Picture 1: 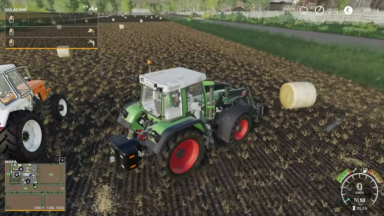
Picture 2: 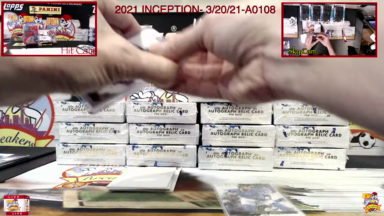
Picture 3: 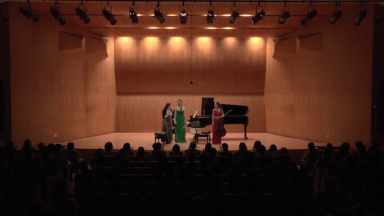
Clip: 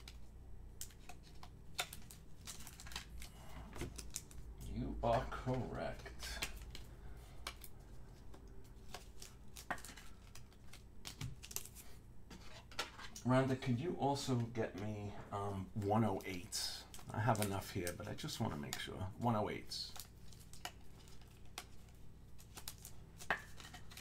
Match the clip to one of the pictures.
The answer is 2